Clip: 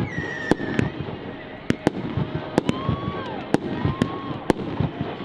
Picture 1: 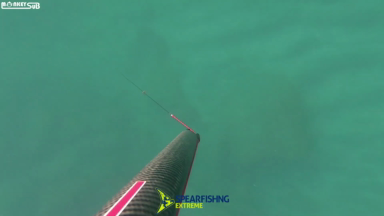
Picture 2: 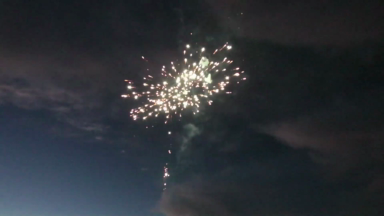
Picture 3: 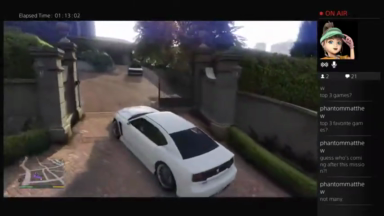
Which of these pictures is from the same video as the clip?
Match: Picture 2